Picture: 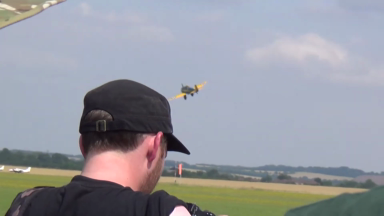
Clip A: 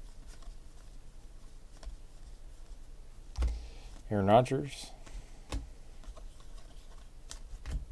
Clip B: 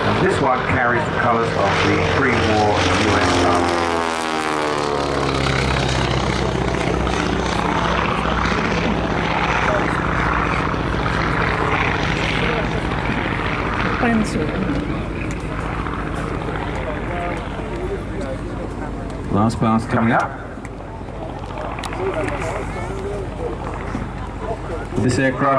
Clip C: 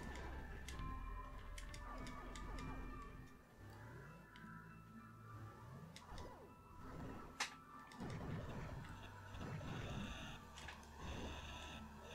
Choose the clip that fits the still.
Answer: B